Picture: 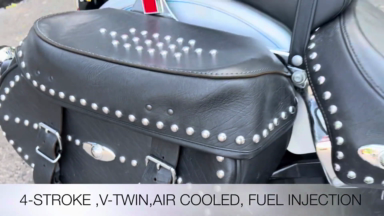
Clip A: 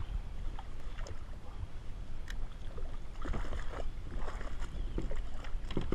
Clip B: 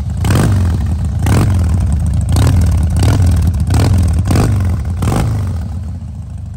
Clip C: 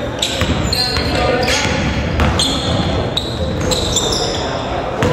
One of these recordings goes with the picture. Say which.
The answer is B